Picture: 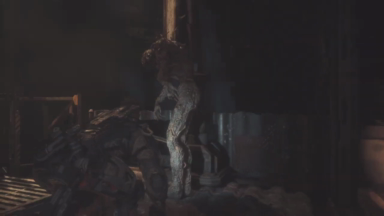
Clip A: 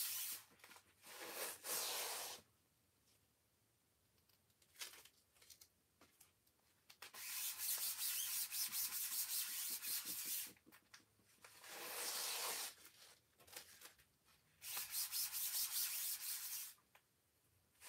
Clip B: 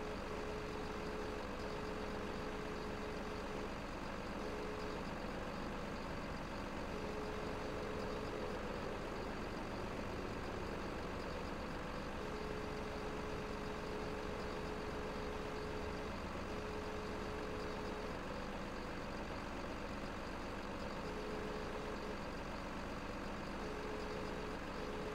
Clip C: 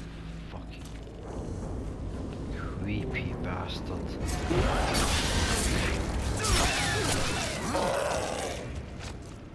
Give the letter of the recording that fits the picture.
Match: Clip C